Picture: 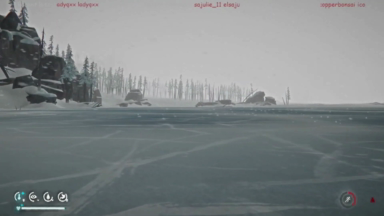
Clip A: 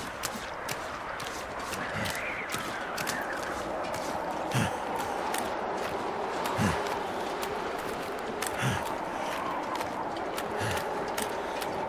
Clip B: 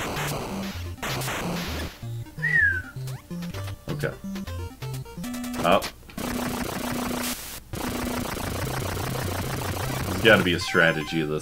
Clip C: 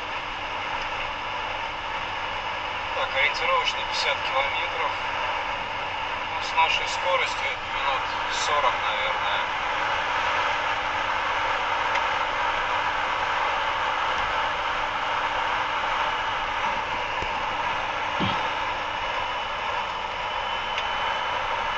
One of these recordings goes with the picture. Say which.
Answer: A